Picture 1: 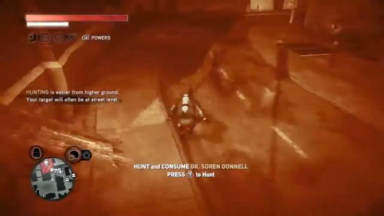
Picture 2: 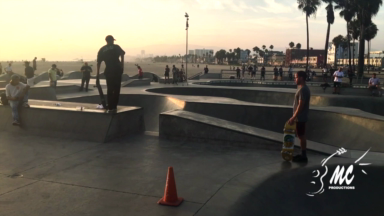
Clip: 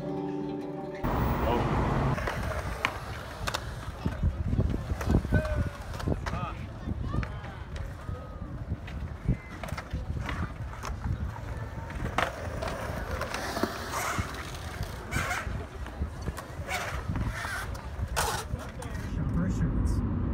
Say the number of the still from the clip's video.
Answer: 2